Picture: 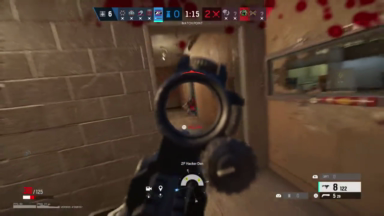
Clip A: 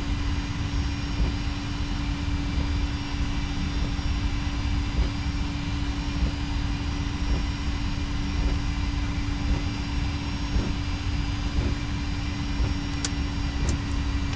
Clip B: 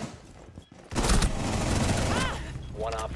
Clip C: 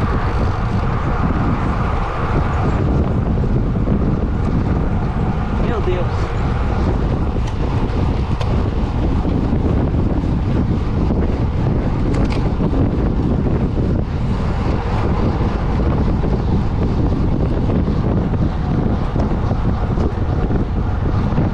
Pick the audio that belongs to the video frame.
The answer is B